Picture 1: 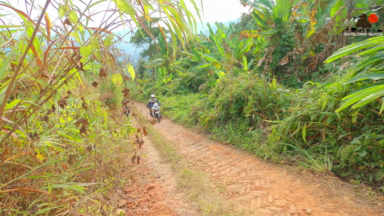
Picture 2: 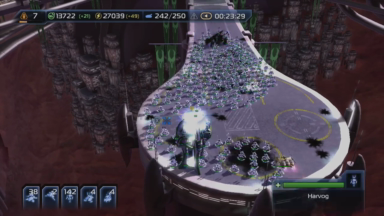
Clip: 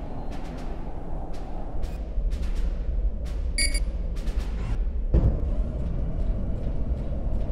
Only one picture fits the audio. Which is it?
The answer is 2